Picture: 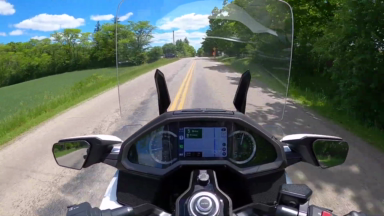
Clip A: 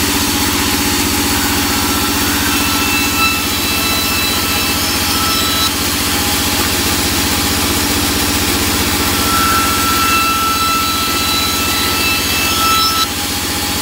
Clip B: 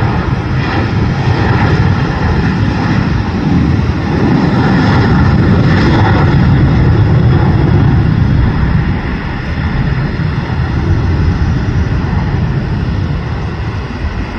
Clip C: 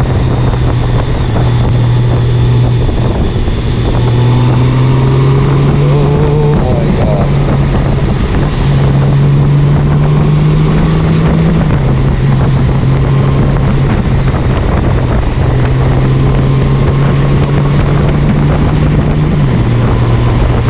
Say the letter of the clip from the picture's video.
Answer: C